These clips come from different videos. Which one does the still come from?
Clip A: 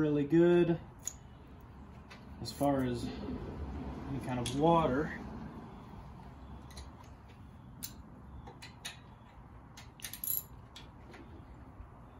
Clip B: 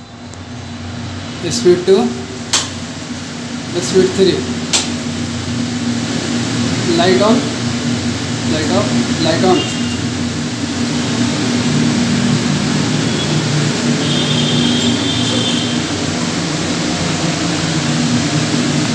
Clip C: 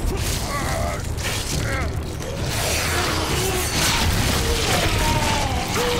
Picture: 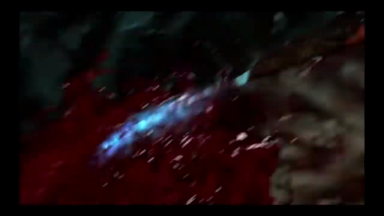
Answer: C